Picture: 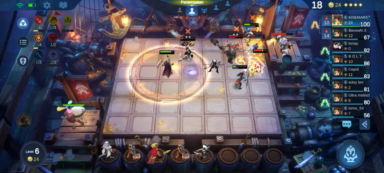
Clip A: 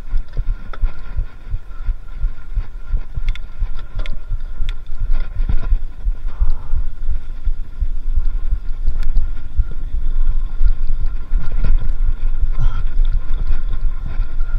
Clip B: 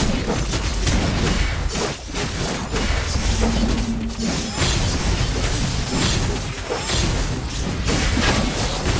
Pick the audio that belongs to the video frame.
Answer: B